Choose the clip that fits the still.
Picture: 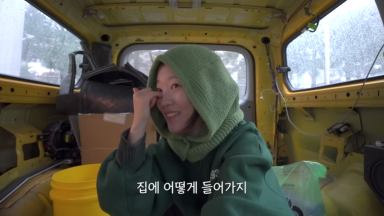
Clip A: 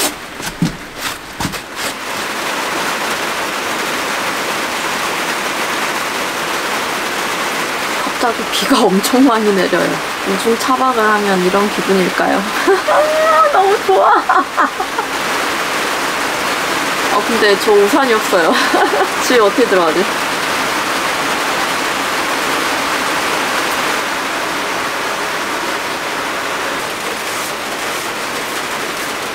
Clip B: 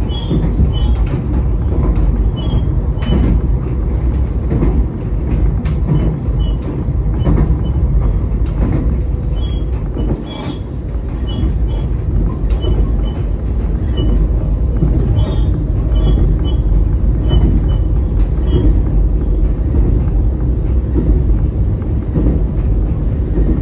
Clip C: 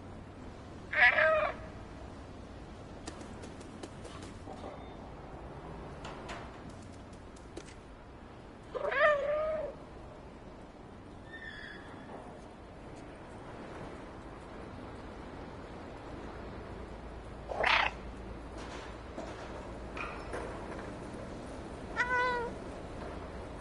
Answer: A